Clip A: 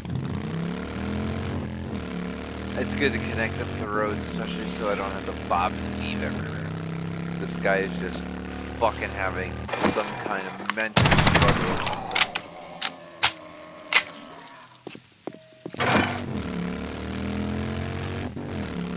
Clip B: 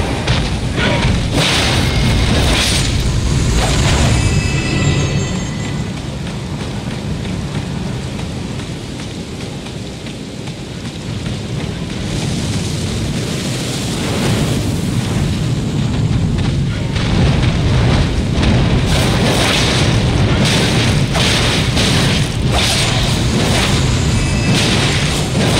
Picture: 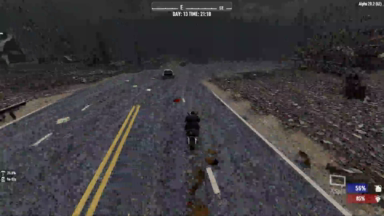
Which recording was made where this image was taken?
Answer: A